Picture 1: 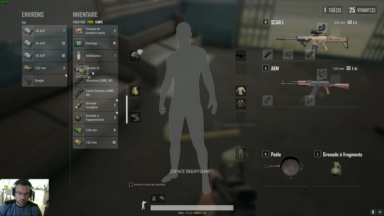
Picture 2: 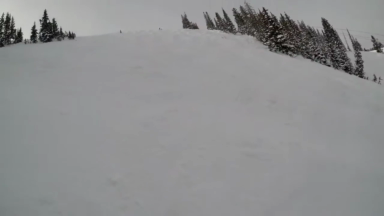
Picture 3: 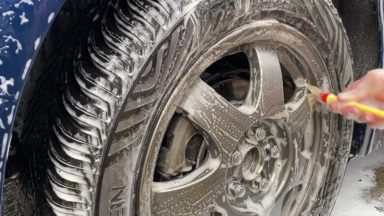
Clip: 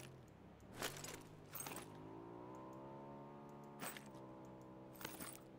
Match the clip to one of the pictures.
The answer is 1